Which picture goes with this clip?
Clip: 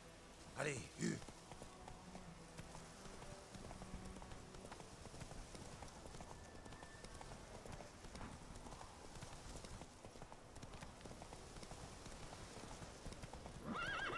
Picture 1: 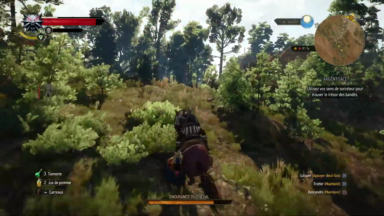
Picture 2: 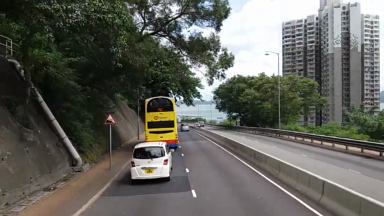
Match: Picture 1